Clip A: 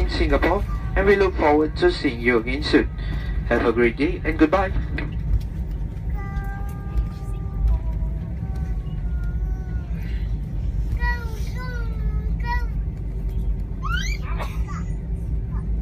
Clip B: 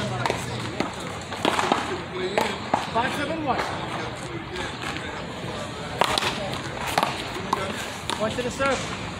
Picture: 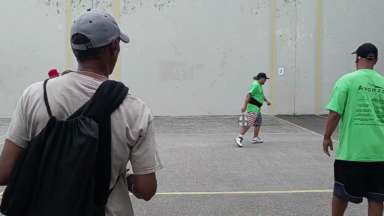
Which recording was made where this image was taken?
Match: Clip B